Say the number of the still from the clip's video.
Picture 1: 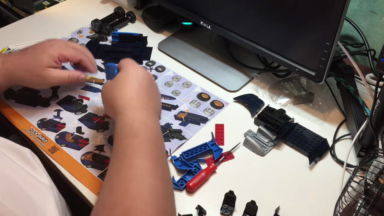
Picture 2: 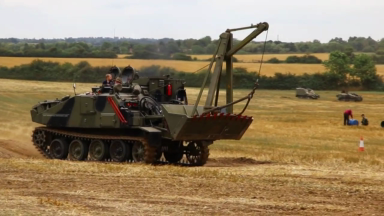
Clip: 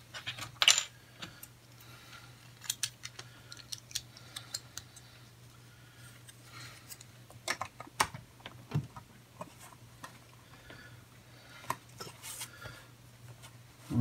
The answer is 1